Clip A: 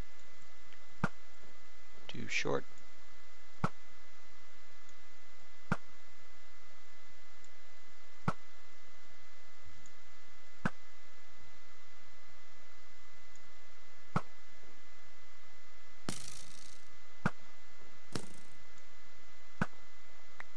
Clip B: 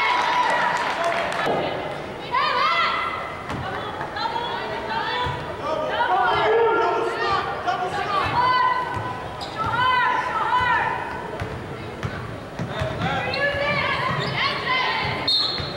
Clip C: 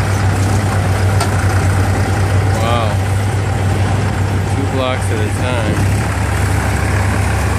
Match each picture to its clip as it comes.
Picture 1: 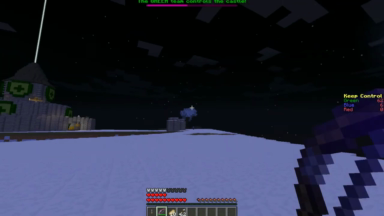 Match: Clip A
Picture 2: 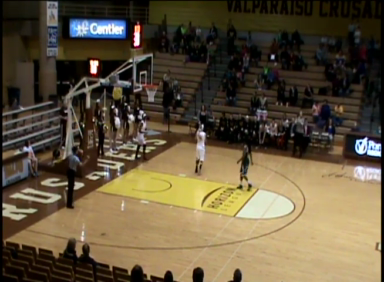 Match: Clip B